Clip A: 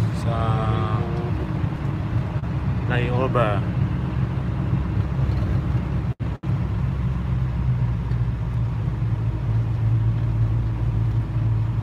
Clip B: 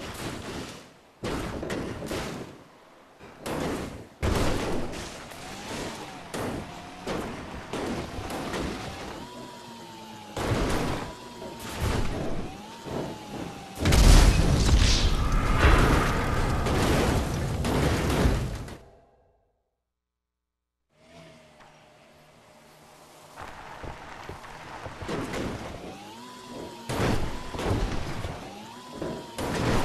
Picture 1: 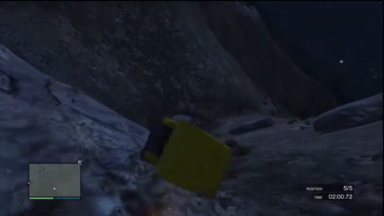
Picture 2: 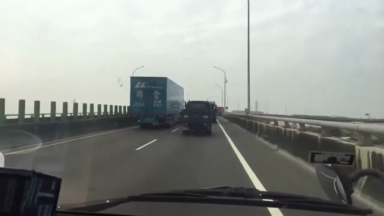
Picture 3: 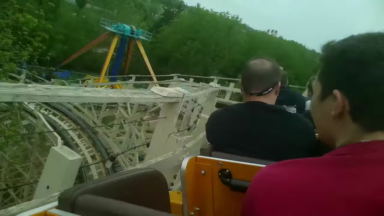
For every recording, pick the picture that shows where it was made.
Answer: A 2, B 1